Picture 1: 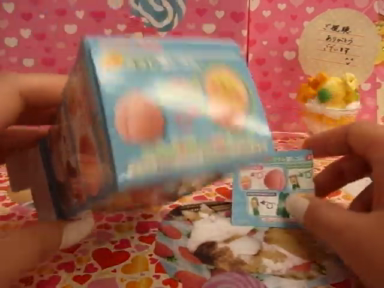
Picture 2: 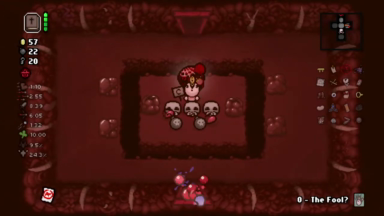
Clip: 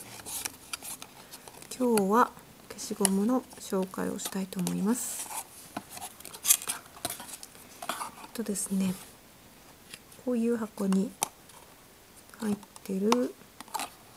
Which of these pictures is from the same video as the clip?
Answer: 1